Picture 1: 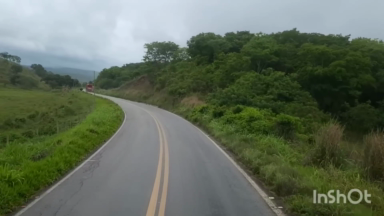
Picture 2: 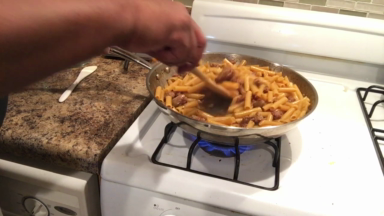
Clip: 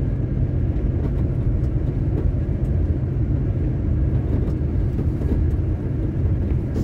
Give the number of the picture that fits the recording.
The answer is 1